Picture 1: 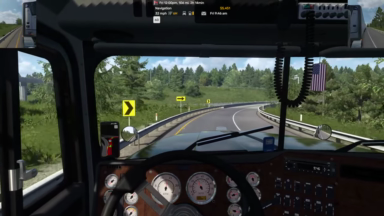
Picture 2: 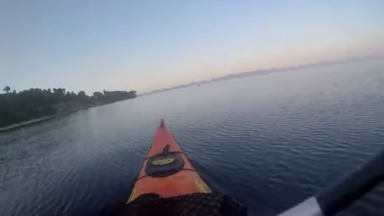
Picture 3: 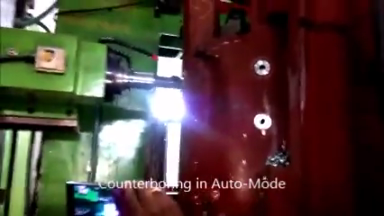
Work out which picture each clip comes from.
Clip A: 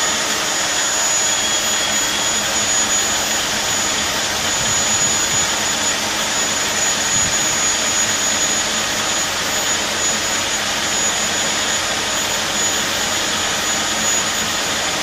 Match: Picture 3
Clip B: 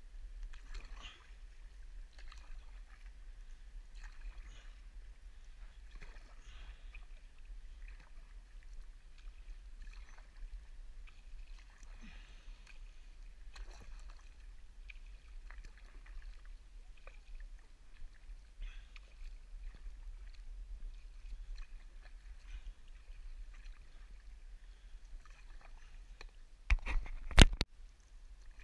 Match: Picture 2